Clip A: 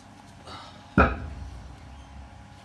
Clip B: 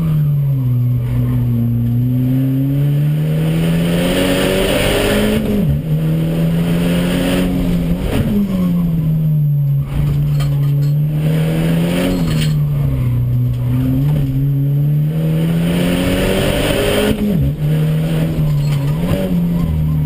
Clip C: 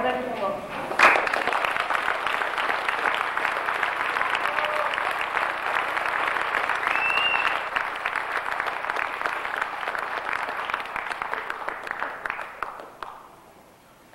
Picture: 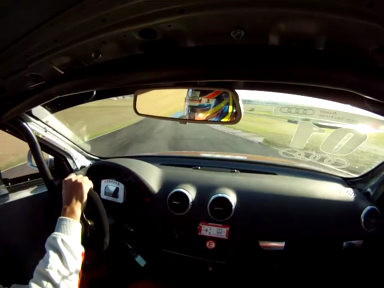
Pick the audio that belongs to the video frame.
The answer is B